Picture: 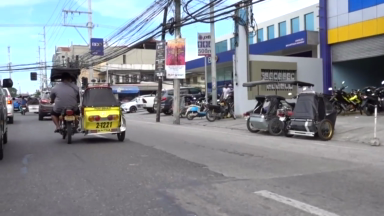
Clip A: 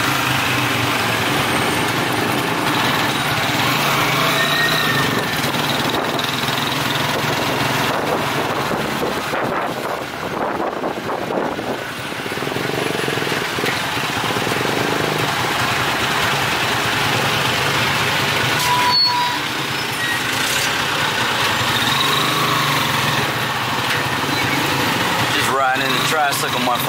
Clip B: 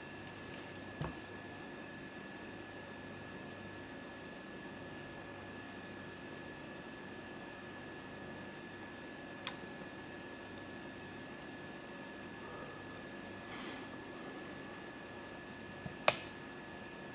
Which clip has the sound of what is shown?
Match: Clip A